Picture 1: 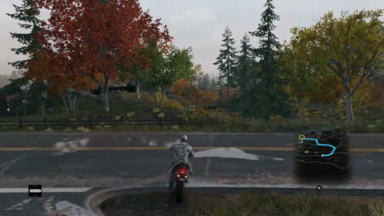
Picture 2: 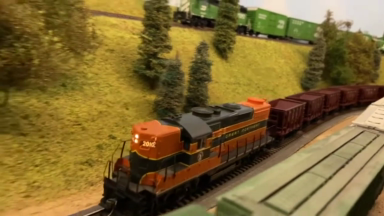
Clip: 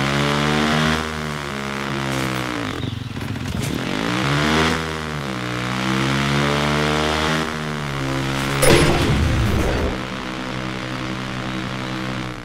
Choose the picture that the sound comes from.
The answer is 1